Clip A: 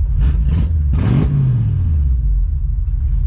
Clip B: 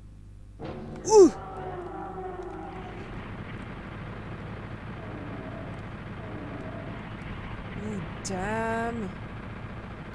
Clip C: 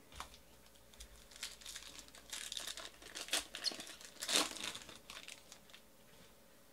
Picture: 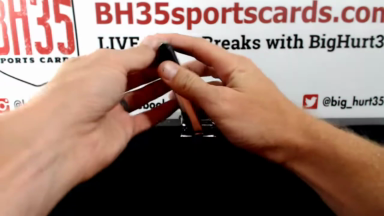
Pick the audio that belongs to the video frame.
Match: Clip C